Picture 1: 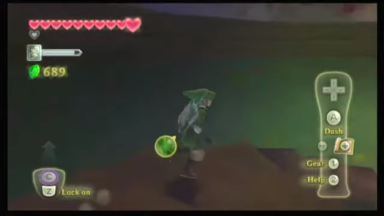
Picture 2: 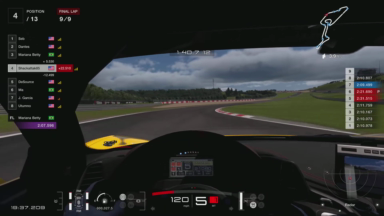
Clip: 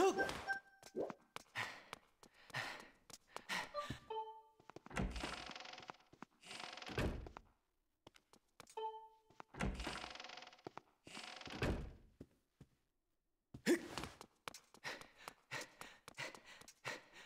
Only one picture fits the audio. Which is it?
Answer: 1